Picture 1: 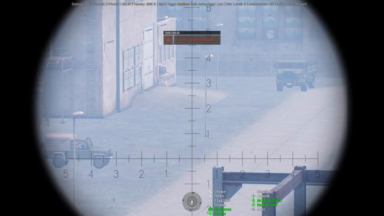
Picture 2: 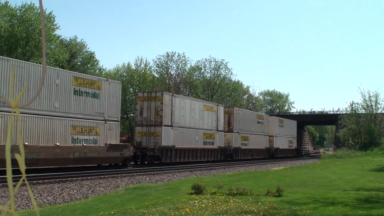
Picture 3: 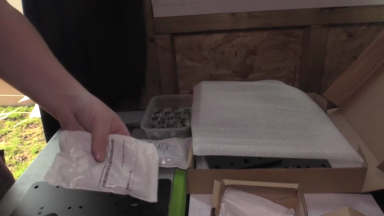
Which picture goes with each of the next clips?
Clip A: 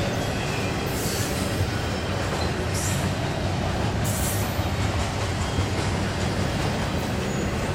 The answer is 2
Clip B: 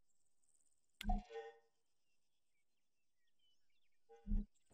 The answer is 1